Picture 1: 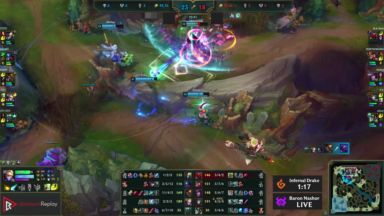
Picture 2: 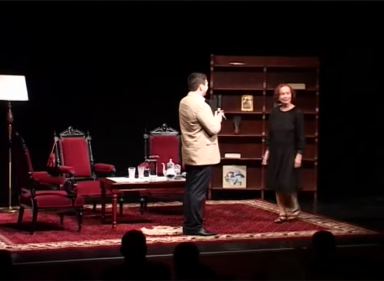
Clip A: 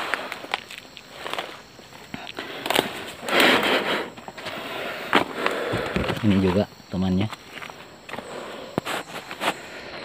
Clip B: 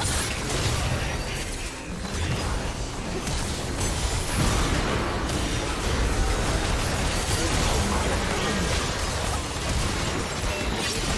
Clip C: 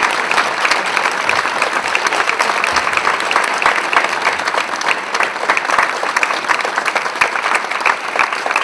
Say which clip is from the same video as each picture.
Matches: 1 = B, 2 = C